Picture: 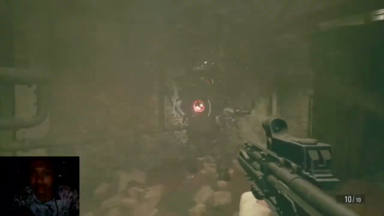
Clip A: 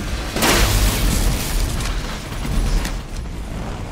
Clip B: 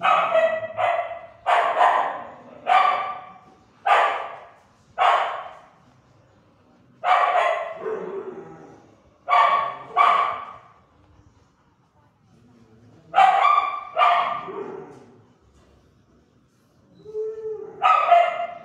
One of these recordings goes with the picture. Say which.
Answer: A